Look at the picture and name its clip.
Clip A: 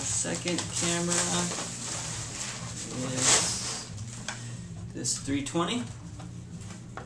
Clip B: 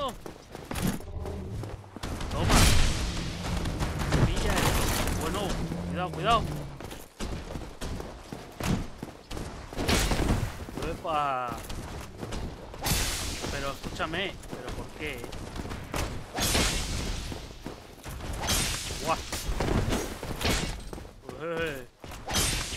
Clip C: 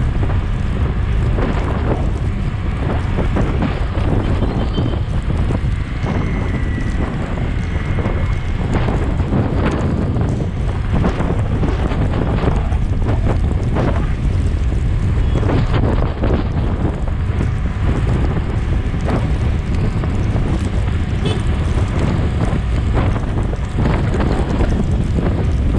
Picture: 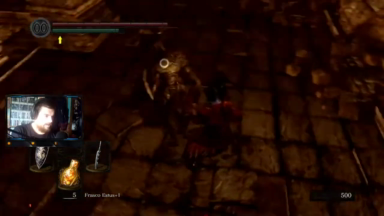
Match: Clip B